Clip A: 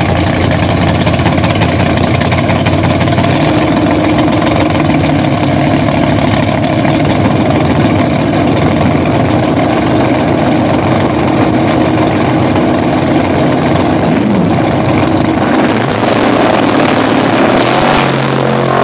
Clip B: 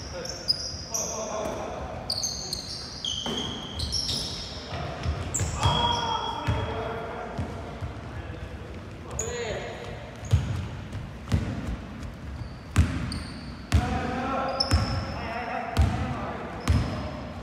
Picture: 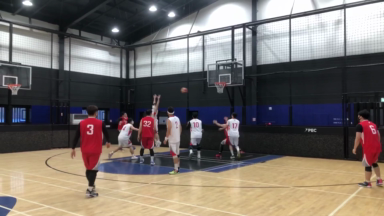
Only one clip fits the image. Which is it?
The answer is B